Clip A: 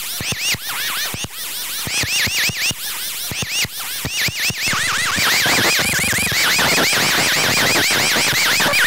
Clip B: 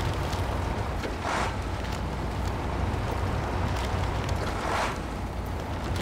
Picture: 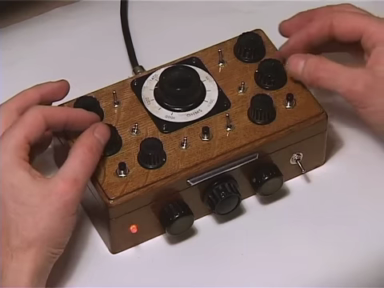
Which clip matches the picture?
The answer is A